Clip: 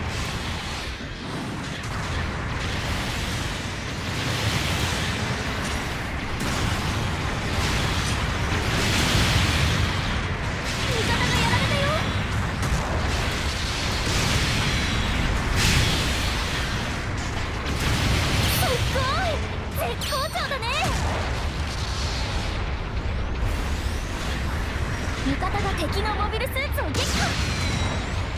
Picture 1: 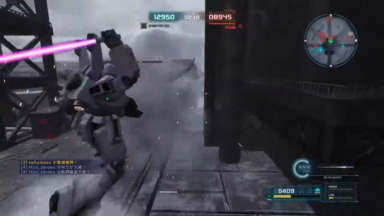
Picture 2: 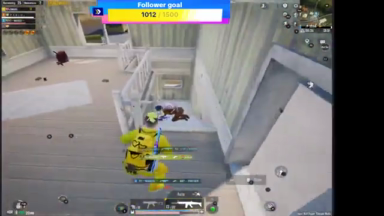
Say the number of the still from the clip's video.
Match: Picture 1